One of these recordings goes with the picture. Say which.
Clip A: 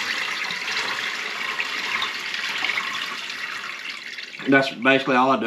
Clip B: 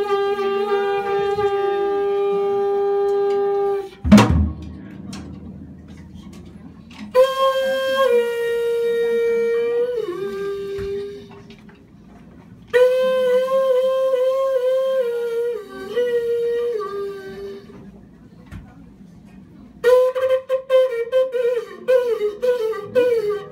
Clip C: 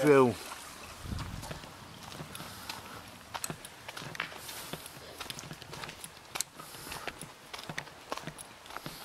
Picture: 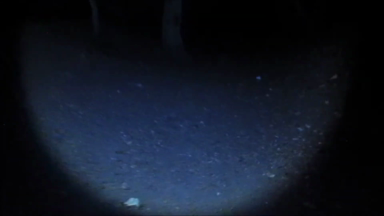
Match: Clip C